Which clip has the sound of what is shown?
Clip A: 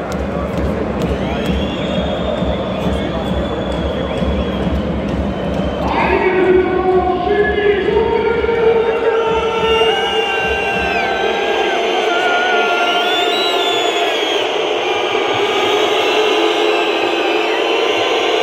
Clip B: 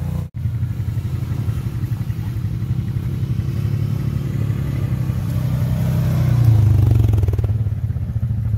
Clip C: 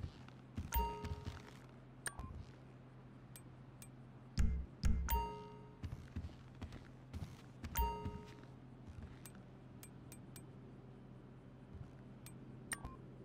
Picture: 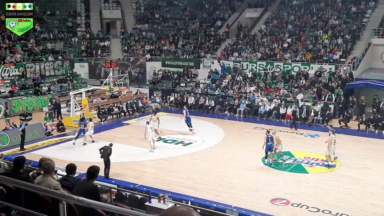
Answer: A